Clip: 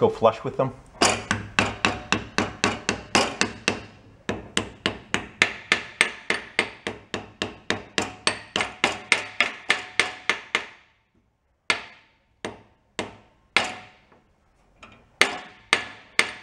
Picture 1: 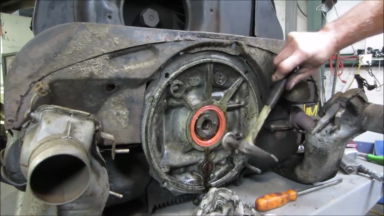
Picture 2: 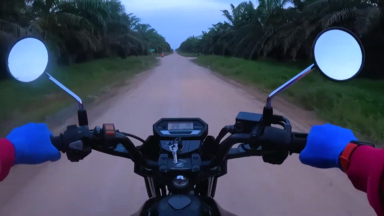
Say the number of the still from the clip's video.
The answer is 1